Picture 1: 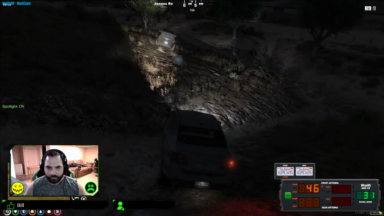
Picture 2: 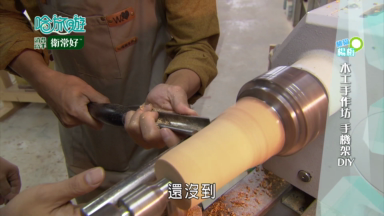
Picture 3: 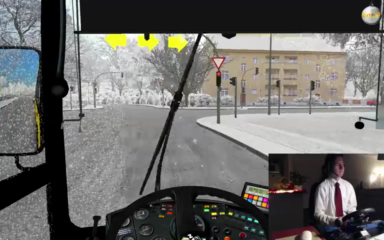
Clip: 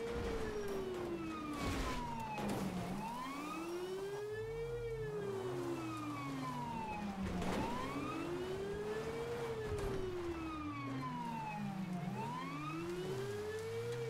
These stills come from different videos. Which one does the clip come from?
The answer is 1